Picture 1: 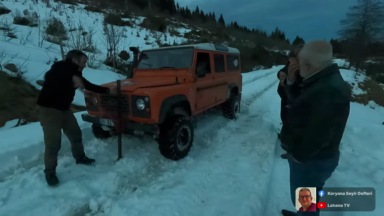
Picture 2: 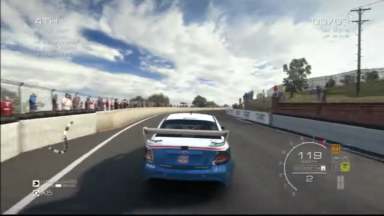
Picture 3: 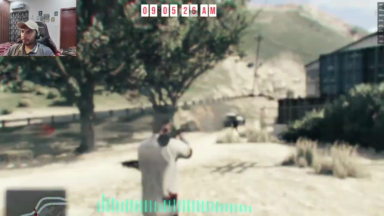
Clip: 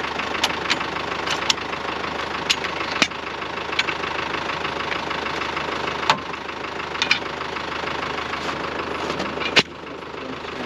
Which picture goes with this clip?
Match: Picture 1